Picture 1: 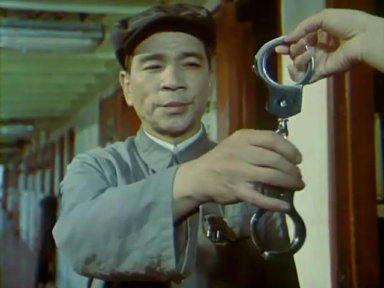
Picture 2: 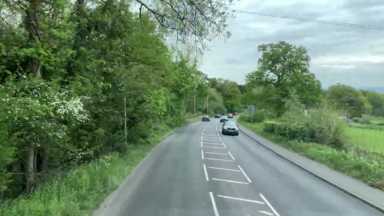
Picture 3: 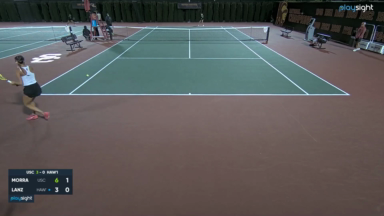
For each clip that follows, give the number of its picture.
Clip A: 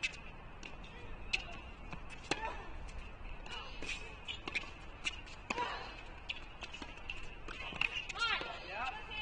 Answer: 3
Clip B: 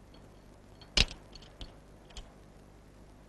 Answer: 1